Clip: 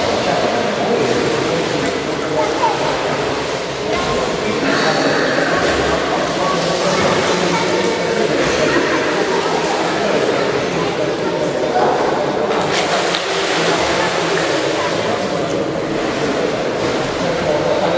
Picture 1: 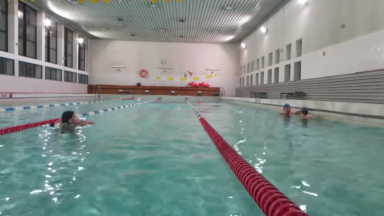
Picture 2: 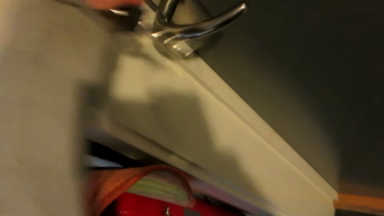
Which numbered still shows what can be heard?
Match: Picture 1